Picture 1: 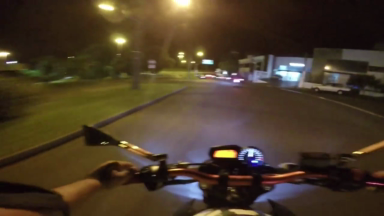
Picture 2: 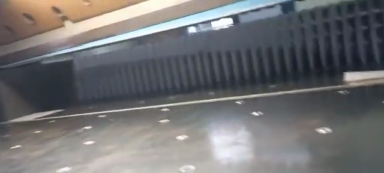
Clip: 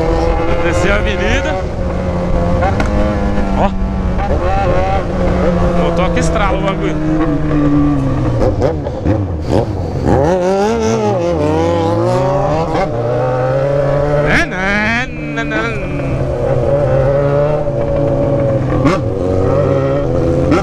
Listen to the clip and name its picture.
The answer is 1